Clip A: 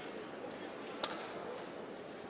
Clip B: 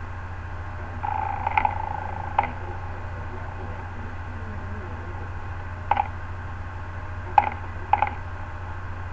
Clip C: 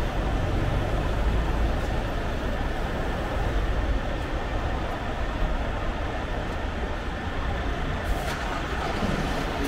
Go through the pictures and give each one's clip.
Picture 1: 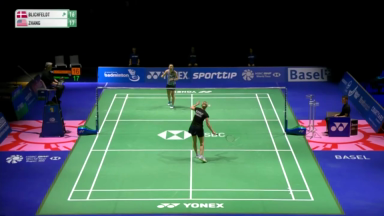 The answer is A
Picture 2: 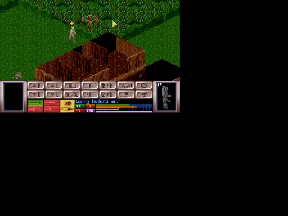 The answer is B